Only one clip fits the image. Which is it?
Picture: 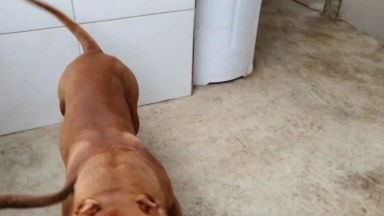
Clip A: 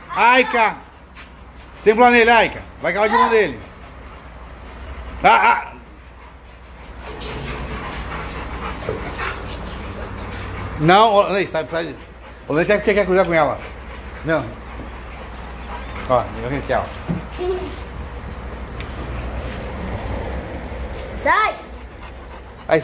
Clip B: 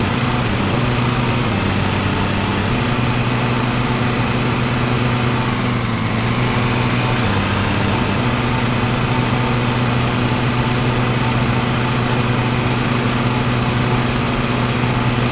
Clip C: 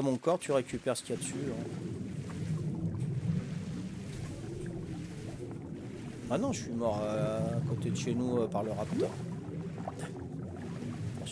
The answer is A